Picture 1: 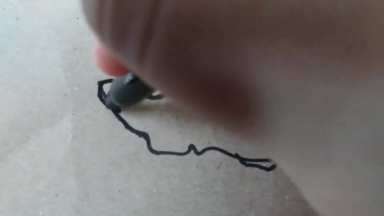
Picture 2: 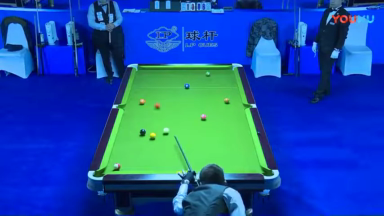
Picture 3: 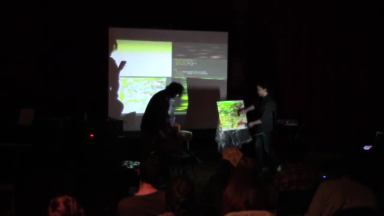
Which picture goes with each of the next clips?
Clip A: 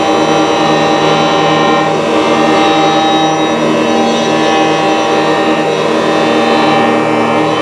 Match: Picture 3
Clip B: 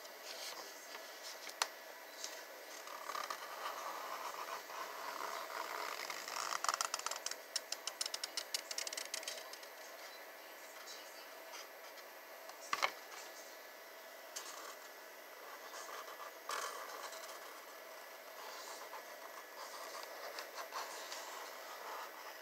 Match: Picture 1